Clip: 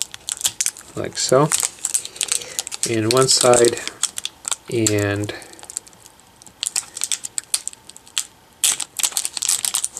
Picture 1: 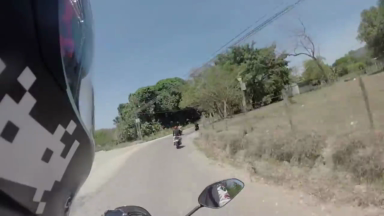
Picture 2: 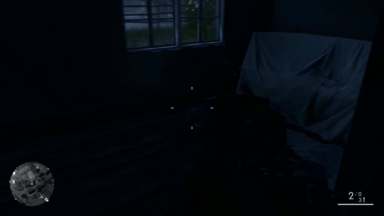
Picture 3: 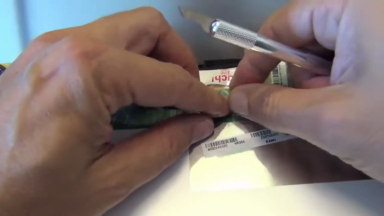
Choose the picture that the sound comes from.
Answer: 3